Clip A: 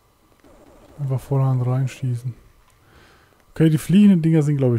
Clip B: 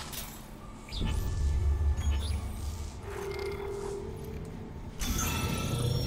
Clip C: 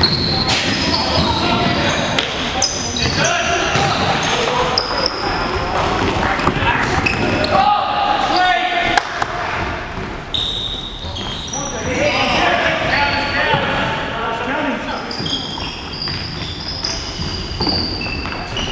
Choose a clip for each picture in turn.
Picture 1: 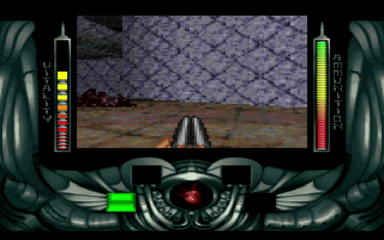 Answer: A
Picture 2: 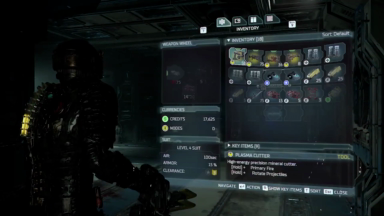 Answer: B